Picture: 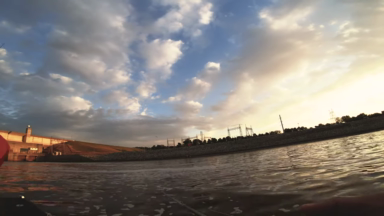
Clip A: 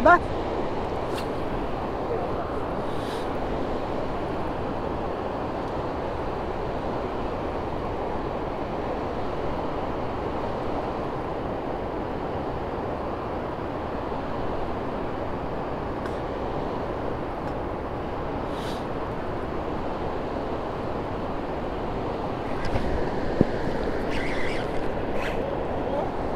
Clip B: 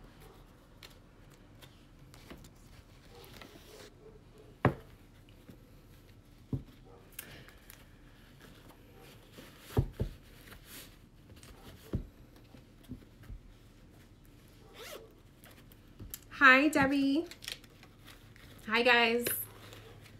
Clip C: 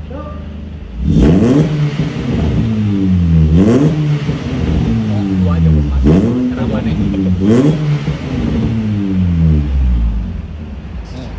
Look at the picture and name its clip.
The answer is A